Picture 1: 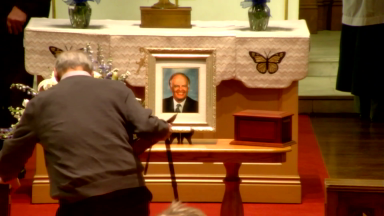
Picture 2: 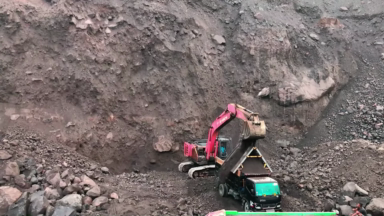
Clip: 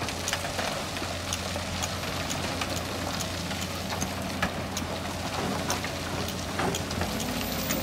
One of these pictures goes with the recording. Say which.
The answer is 2